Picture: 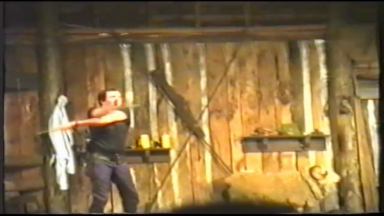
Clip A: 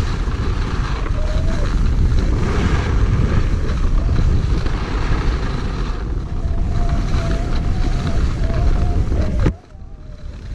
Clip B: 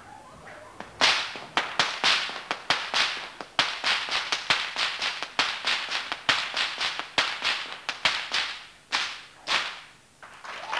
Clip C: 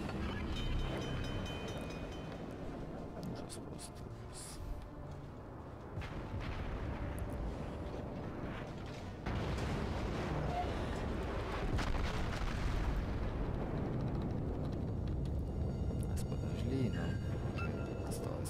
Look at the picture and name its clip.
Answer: B